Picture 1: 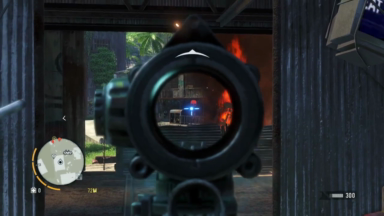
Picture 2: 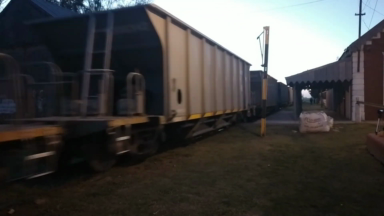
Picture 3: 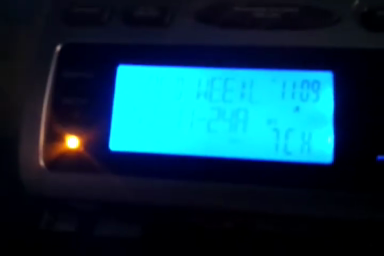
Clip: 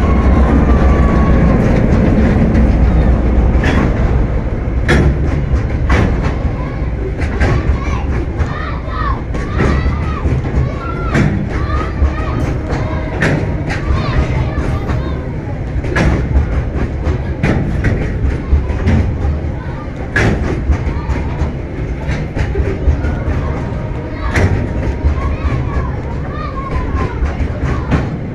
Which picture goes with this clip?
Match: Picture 2